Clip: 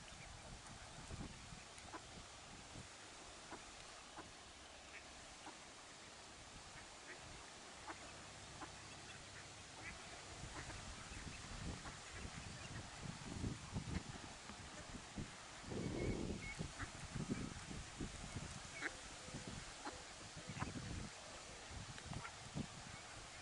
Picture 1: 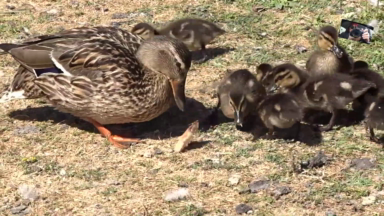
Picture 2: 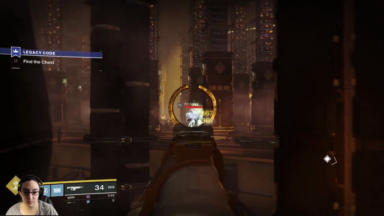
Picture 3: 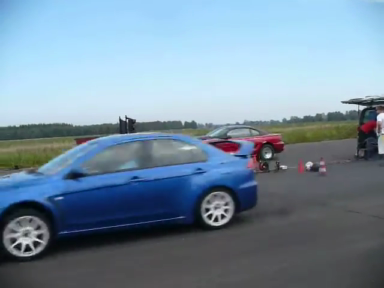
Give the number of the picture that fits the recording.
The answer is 1